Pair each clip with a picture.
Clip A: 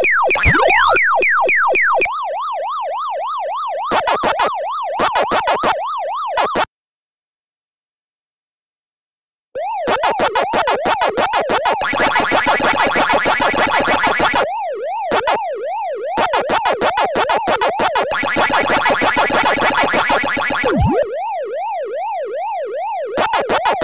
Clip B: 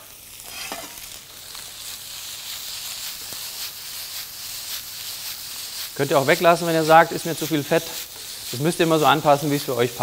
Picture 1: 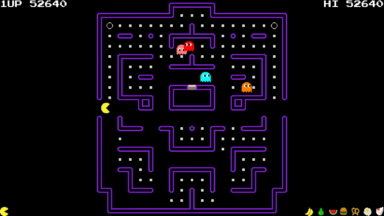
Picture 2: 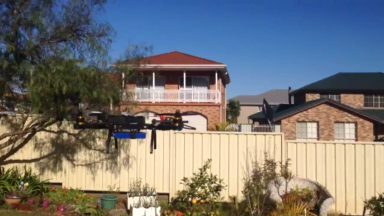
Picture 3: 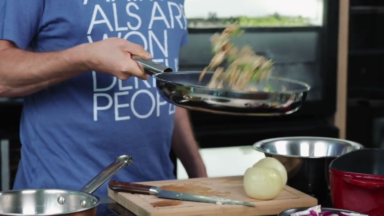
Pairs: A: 1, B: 3